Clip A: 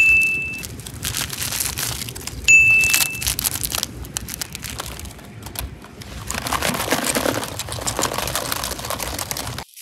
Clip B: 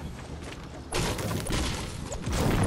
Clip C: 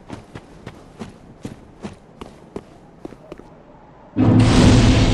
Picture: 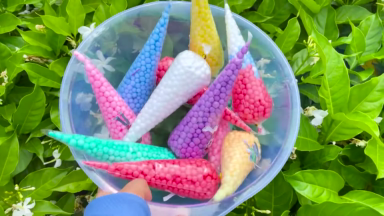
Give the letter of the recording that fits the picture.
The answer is A